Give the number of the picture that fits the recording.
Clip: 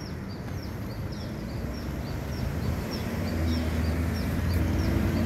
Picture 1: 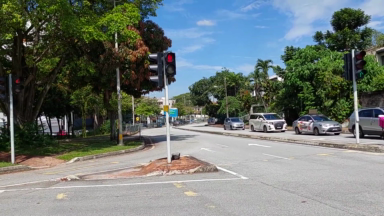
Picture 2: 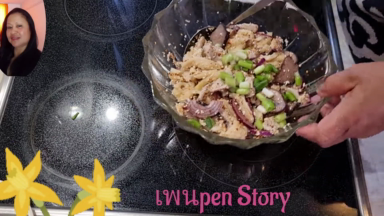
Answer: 1